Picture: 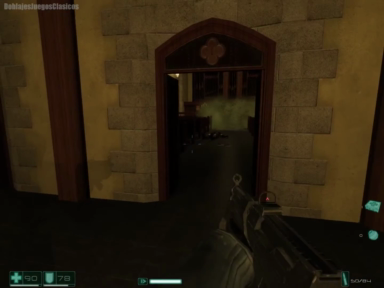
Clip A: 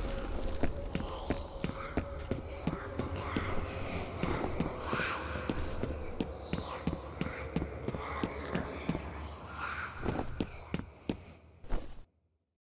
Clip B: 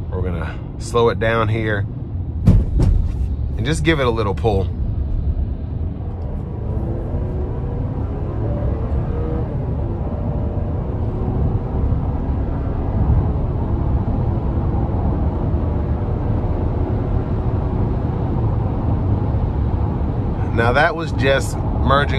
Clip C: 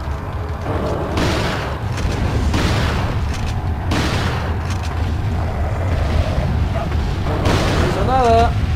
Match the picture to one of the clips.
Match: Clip A